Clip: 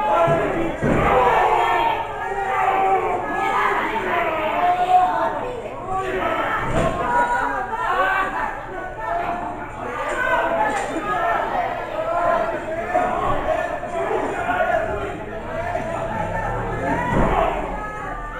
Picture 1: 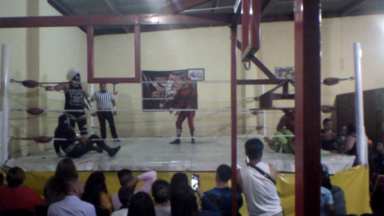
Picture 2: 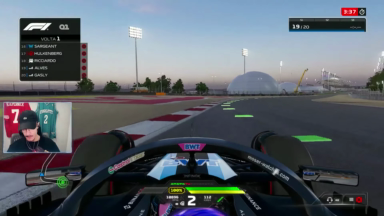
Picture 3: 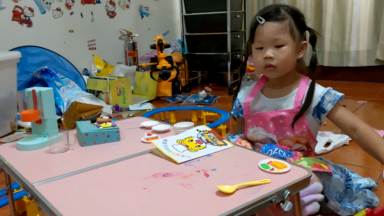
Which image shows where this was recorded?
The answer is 1